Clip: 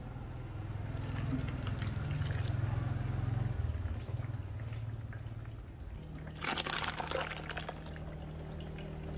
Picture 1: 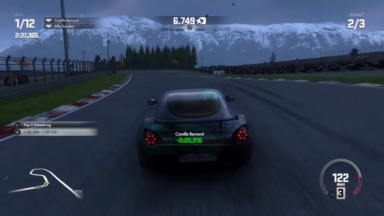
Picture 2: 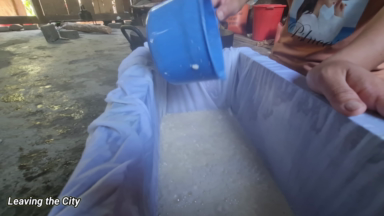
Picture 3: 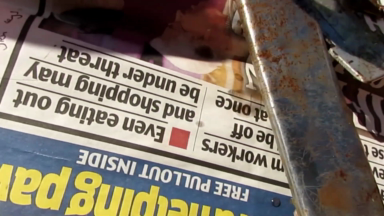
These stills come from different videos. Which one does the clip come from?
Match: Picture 2